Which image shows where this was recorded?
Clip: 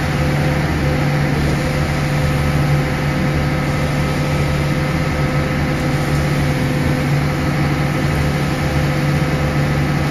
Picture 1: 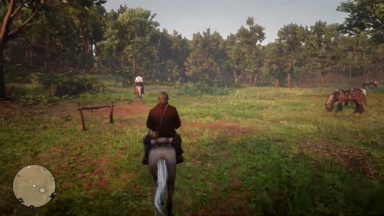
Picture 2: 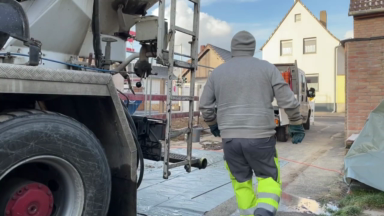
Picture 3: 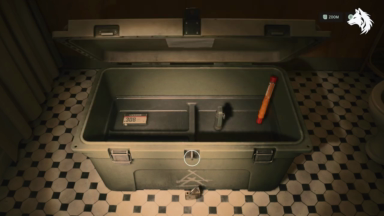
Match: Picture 2